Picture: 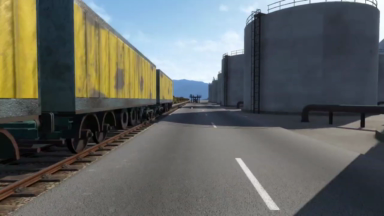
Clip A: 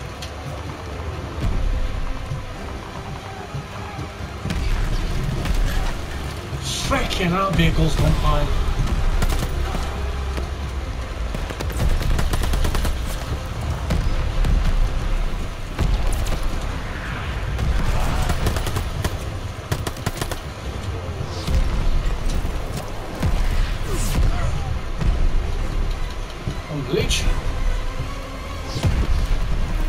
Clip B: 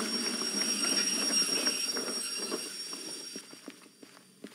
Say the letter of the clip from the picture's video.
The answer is B